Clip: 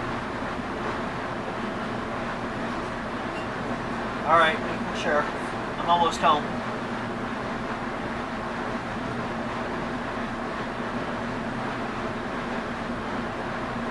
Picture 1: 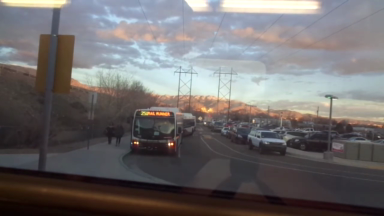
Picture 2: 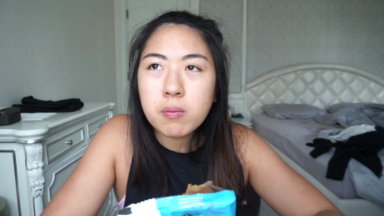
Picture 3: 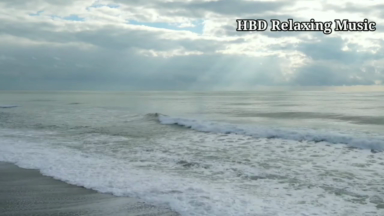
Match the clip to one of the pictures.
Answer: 1